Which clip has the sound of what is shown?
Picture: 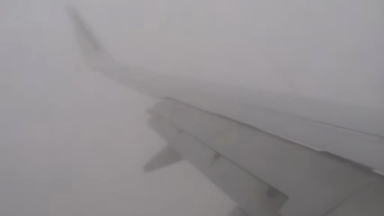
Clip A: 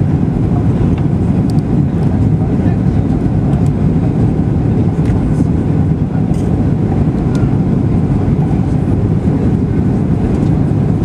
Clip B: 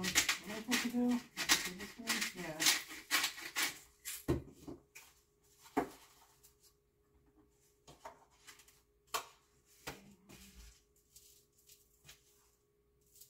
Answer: A